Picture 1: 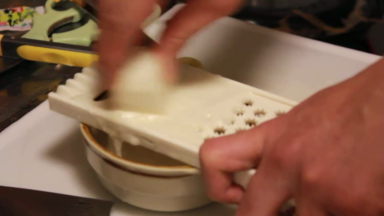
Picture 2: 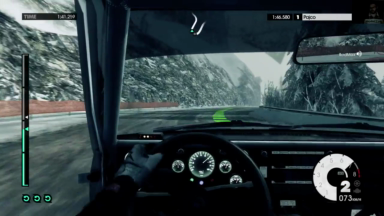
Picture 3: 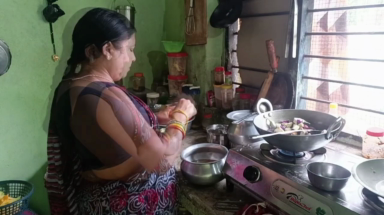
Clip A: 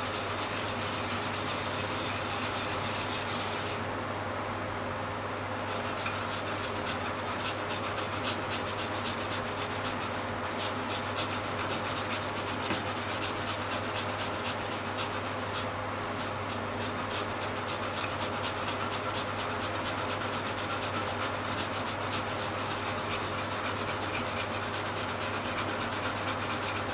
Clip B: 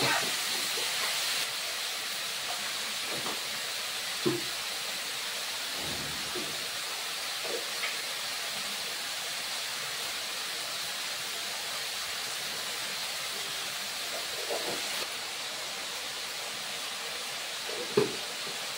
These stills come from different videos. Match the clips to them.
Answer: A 1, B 3